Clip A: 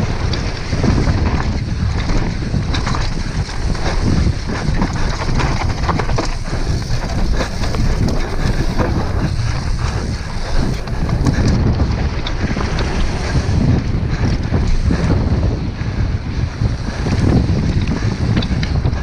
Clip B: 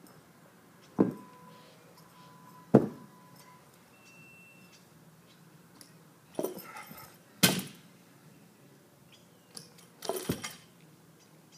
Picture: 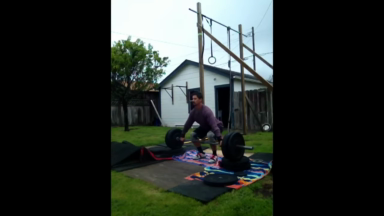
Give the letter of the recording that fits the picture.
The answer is B